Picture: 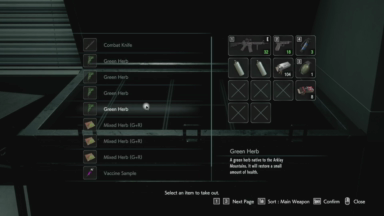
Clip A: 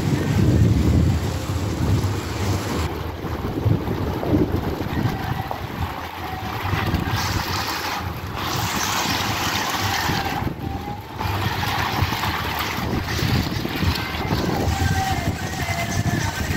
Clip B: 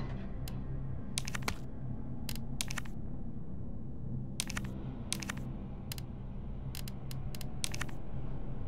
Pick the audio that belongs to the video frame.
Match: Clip B